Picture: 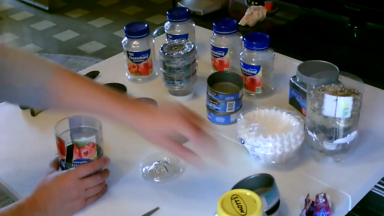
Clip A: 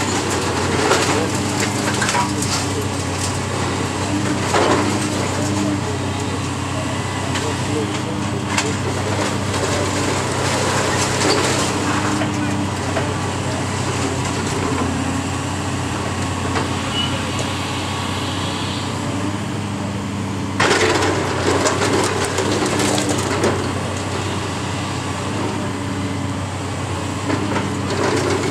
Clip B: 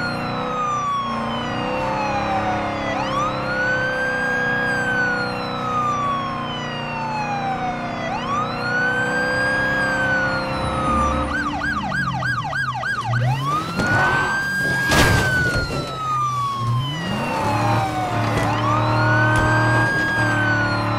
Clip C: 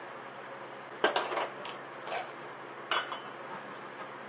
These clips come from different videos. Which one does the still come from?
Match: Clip C